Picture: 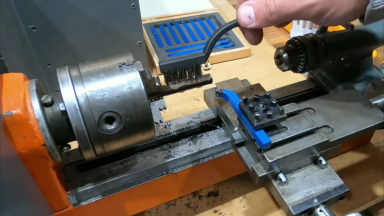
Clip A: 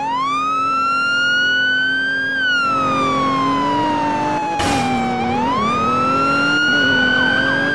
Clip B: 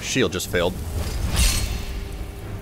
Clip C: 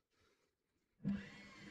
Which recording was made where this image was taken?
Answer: C